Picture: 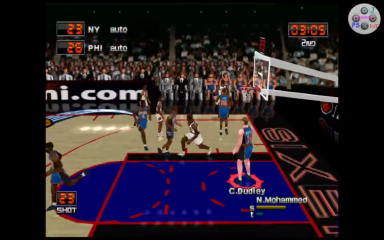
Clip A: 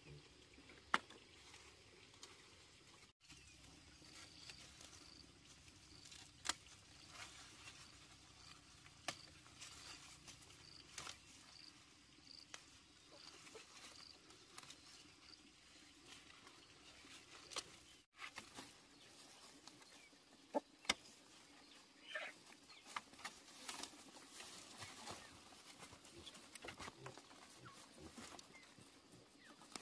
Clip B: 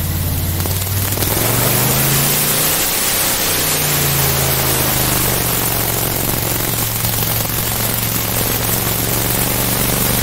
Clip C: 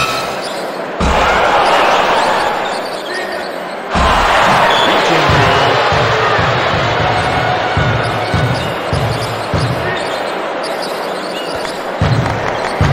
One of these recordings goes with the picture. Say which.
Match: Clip C